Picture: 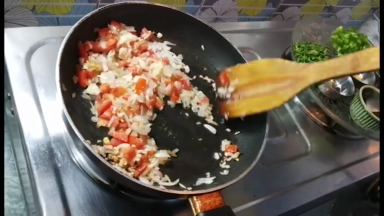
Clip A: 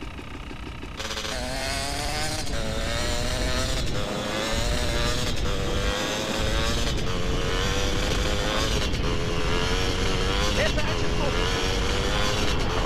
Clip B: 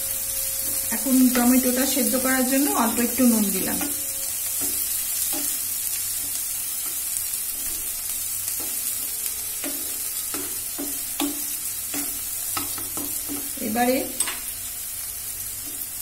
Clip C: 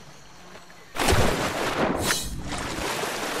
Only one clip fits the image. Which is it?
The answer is B